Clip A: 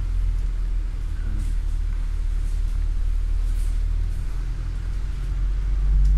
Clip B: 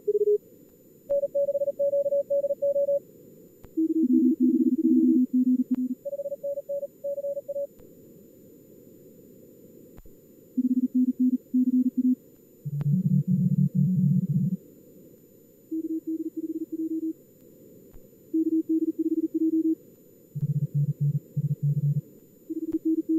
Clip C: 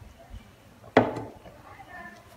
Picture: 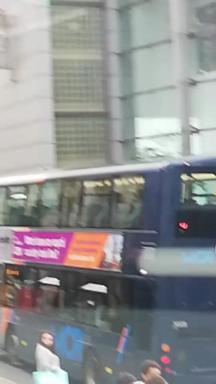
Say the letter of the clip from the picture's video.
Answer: A